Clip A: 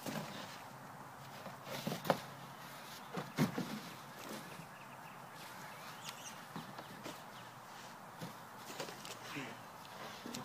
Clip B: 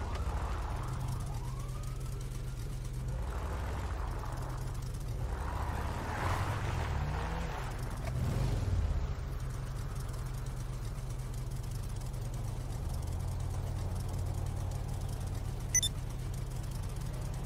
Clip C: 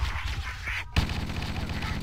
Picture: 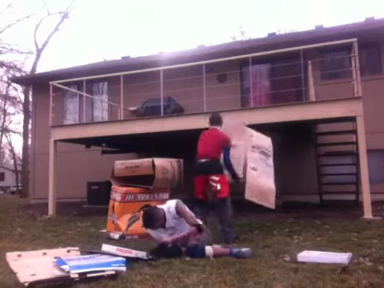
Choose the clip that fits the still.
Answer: A